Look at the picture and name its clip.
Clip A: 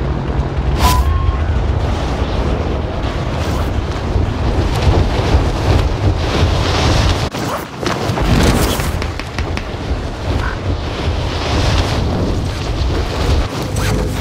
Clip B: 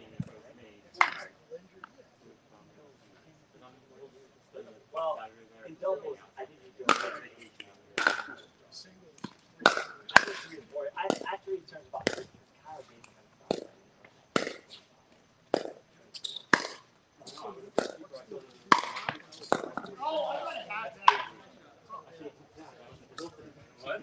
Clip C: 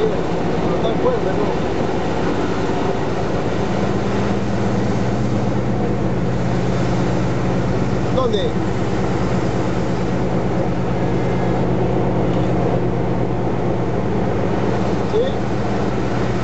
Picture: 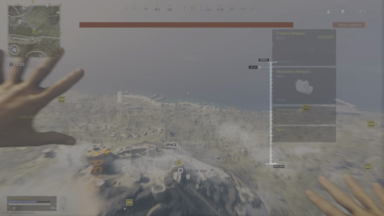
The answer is A